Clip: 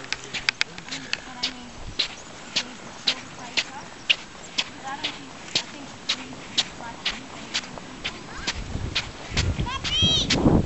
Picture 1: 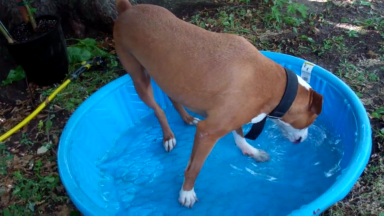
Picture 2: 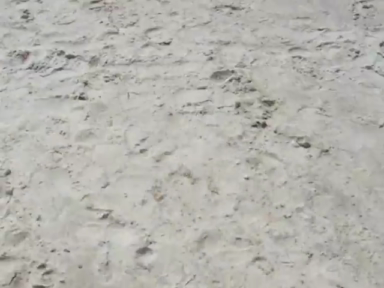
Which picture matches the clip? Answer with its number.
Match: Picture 2